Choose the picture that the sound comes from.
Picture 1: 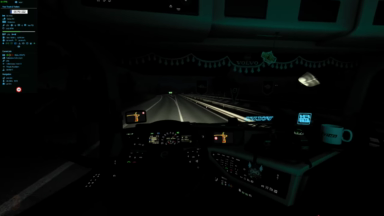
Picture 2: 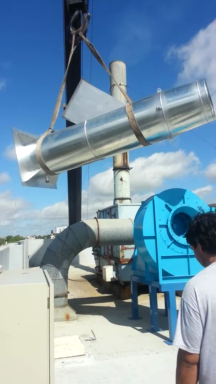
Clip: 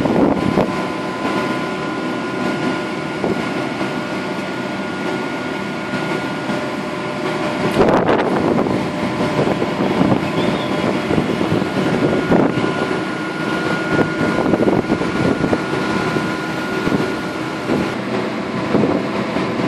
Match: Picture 2